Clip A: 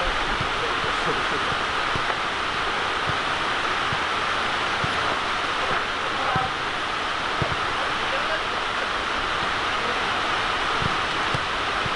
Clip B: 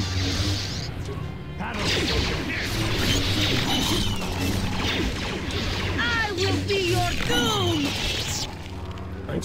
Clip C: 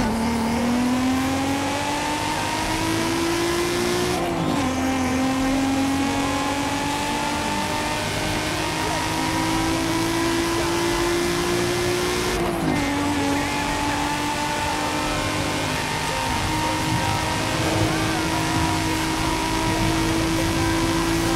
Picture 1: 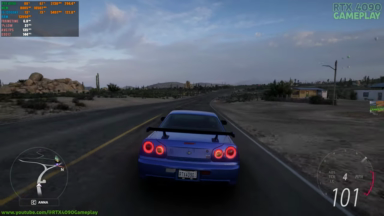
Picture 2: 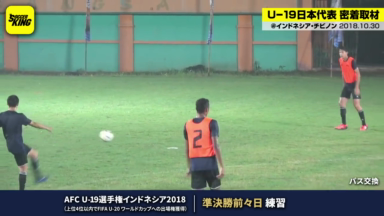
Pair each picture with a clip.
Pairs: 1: C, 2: A